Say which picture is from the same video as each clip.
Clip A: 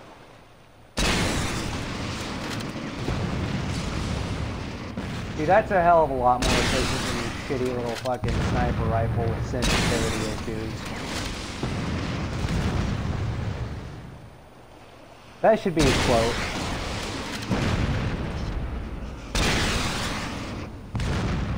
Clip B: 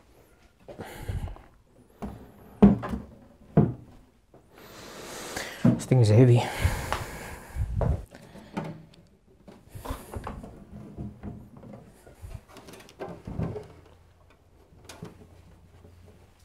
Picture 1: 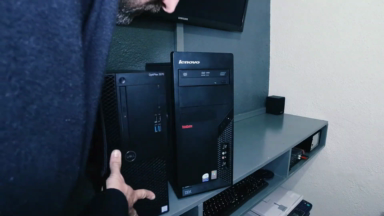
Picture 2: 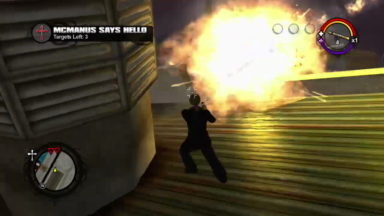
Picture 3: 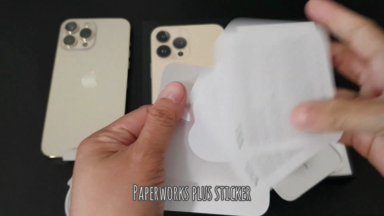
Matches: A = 2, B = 1